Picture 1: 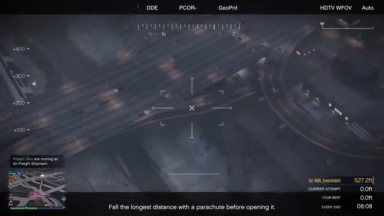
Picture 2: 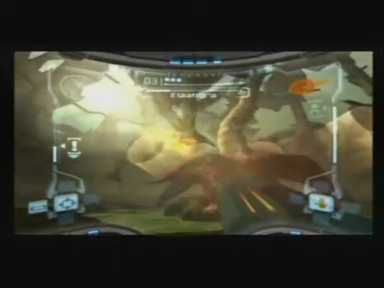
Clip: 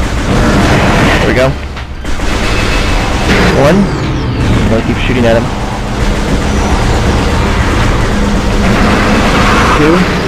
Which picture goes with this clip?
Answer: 2